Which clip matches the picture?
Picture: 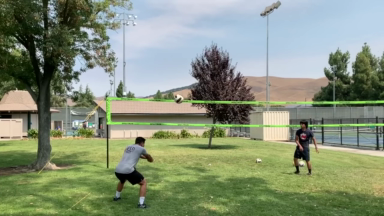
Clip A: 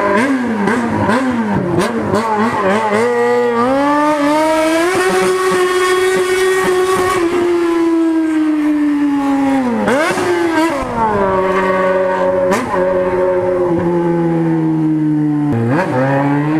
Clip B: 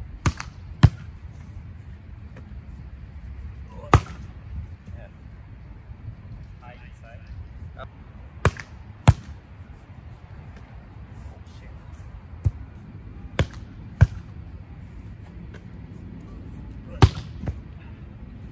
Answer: B